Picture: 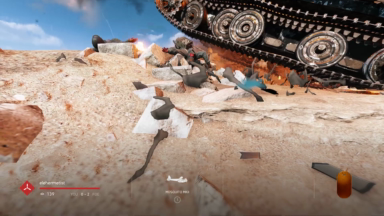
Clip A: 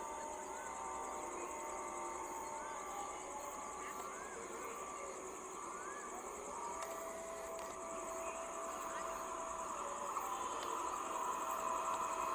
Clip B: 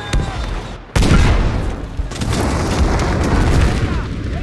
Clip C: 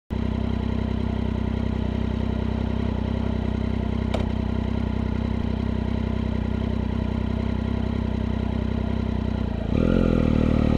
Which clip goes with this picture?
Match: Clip B